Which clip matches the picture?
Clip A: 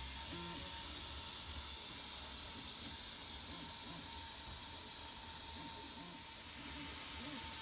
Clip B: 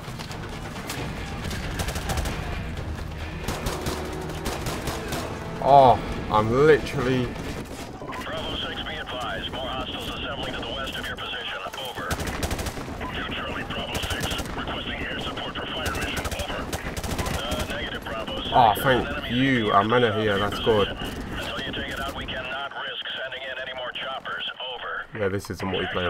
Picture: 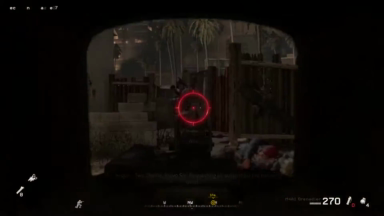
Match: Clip B